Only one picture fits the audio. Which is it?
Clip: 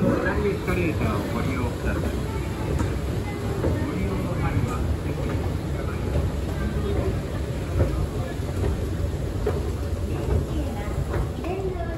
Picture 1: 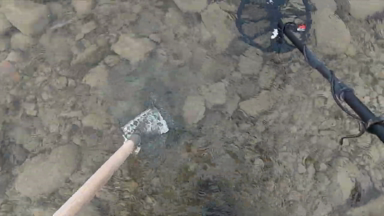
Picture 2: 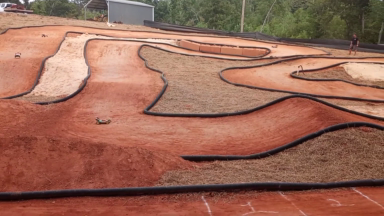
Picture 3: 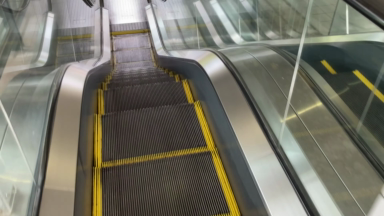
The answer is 3